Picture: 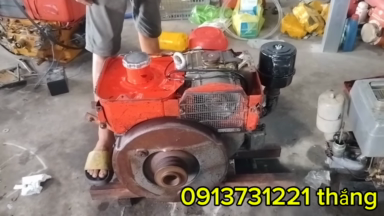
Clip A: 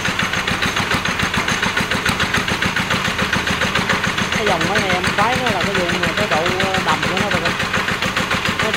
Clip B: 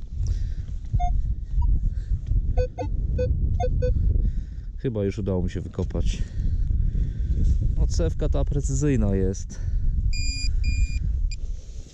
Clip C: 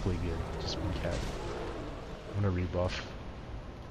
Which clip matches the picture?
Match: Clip A